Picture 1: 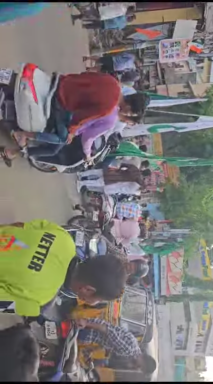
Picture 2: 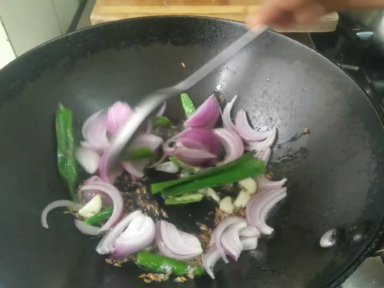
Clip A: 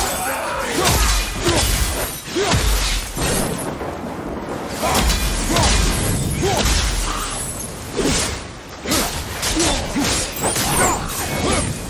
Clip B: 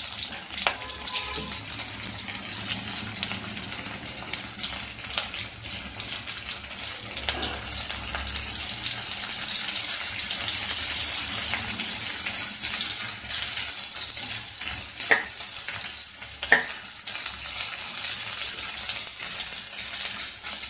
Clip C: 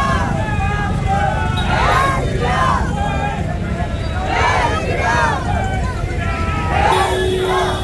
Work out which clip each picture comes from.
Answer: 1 C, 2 B